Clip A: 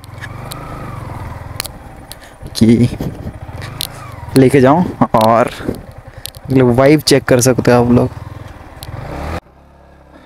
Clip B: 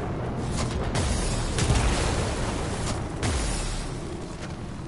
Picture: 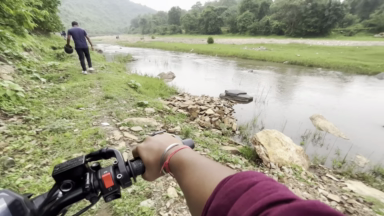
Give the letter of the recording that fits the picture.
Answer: A